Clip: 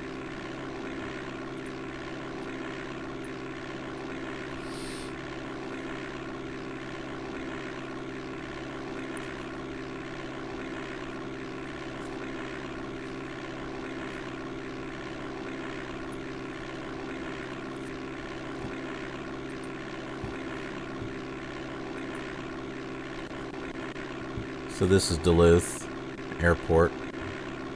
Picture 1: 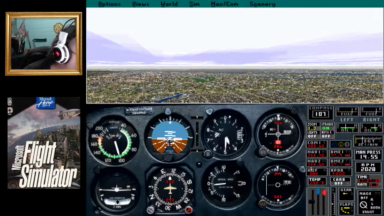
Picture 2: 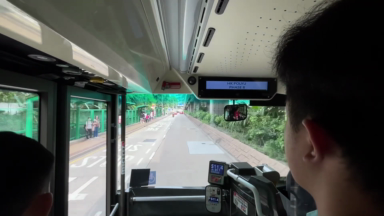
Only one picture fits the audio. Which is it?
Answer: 1